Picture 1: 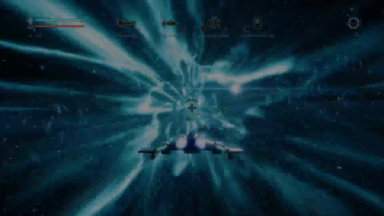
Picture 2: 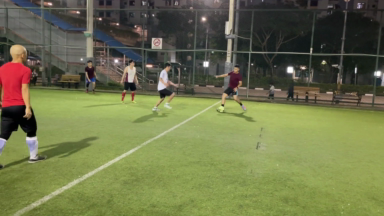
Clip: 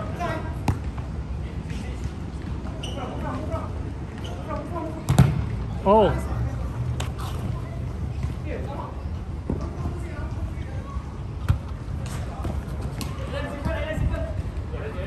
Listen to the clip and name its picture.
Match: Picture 2